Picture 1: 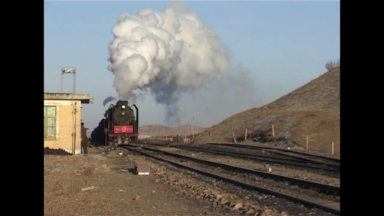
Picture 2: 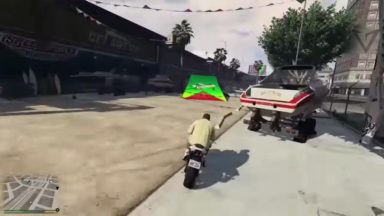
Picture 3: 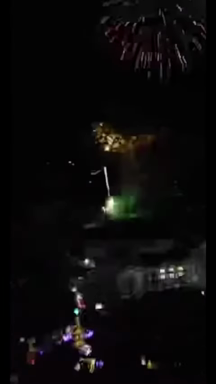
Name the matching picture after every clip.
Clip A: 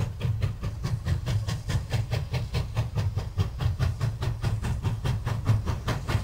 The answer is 1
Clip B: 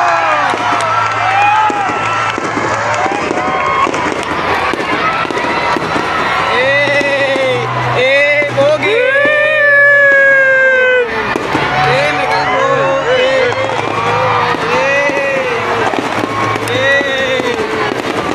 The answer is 3